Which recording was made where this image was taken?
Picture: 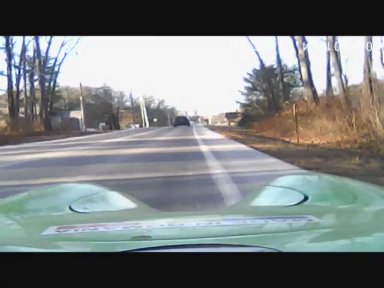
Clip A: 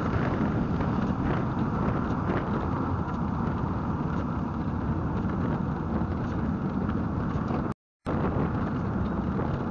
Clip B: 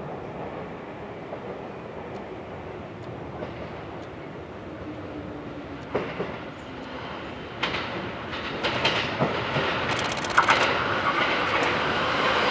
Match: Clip A